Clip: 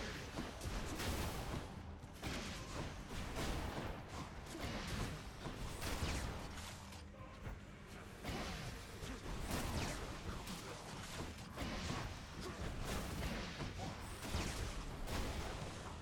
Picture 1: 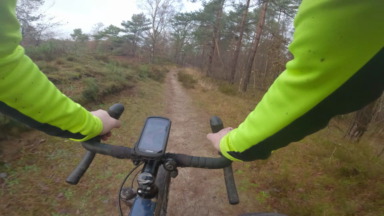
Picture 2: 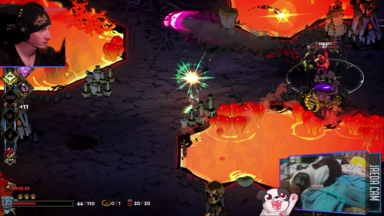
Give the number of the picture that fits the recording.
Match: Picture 2